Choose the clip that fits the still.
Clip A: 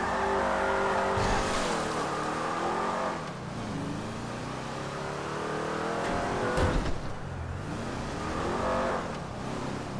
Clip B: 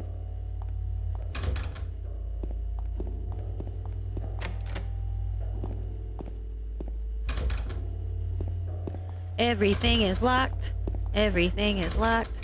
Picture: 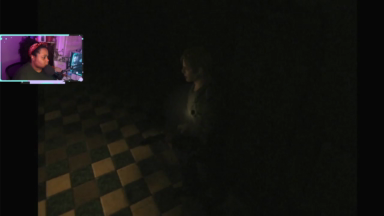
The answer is B